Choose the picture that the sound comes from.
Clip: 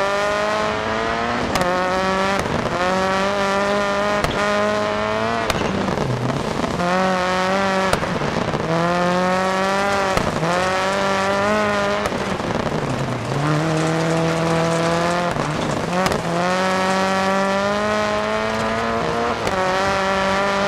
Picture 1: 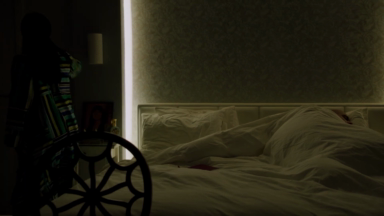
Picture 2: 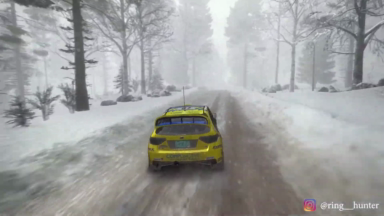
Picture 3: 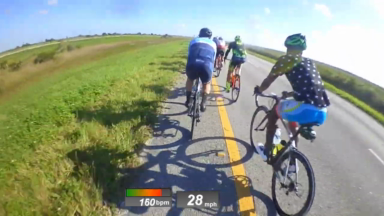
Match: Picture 2